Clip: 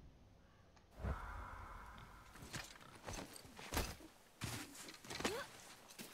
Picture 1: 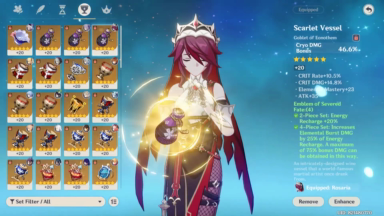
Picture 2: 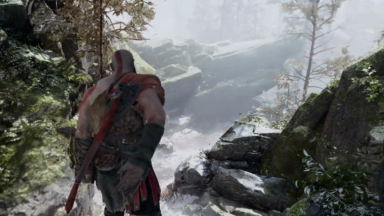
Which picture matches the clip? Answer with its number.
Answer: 2